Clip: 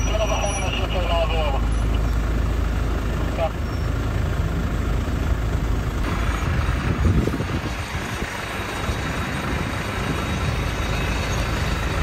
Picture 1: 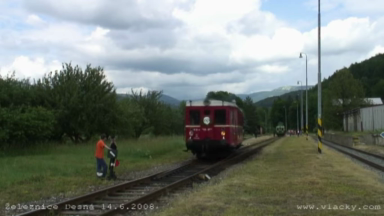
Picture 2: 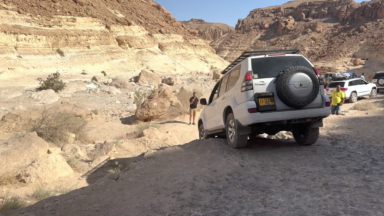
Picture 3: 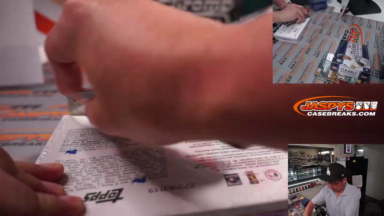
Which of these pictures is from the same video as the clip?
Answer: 2